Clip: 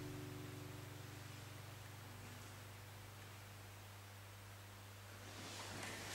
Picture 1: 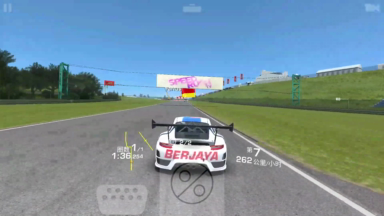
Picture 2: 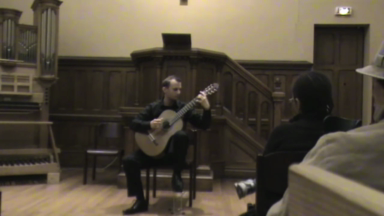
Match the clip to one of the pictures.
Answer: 2